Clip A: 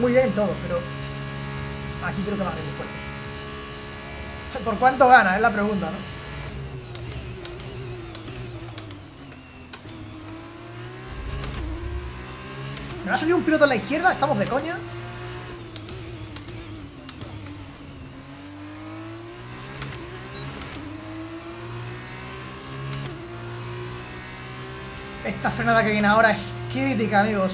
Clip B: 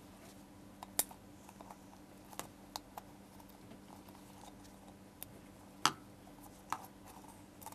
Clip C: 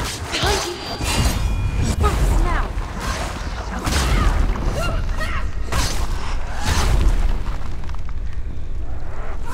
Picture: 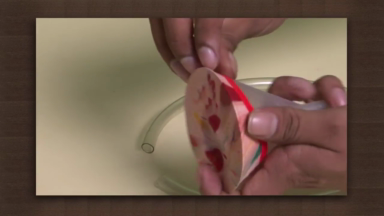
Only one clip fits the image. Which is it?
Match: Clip B